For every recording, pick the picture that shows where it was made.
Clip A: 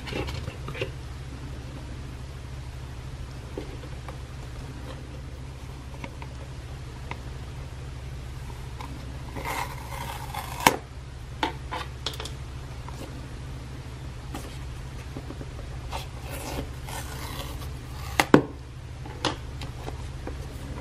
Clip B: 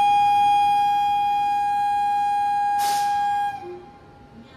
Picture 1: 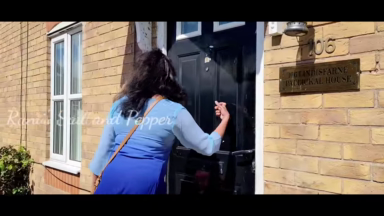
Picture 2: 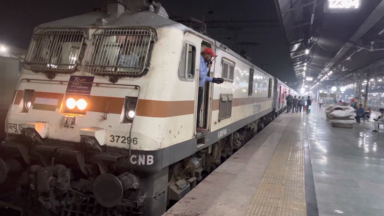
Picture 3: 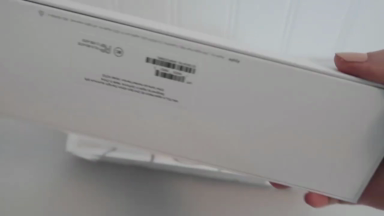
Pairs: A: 3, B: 2